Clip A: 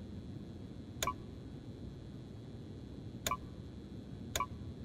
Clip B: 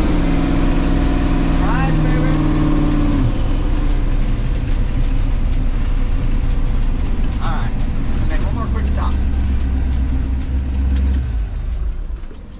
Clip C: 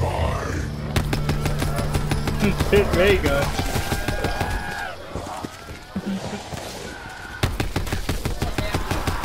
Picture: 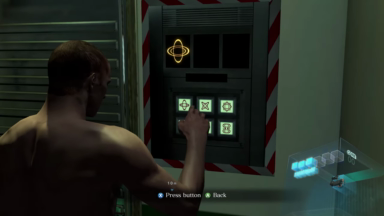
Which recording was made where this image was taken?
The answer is A